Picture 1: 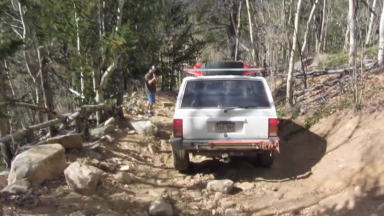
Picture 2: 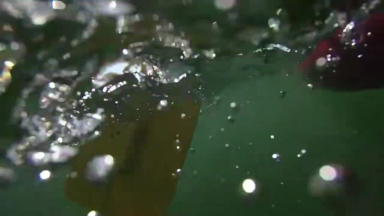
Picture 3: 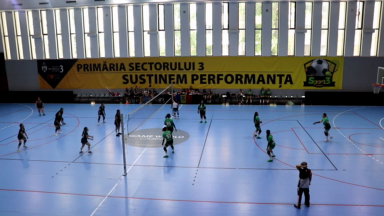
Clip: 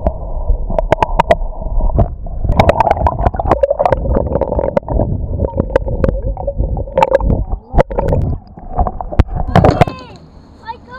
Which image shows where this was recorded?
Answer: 2